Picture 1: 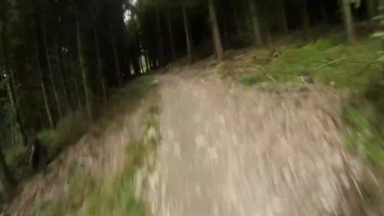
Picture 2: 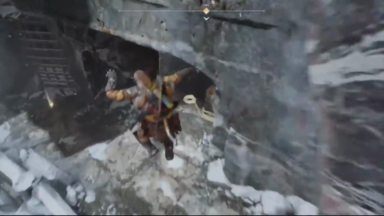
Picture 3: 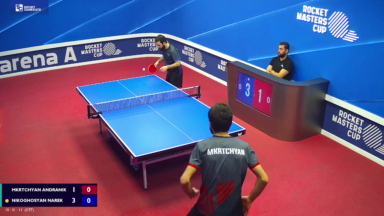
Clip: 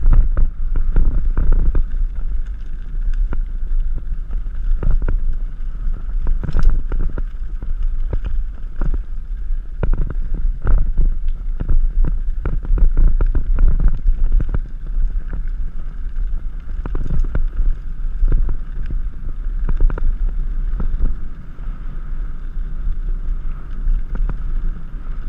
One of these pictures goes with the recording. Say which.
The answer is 1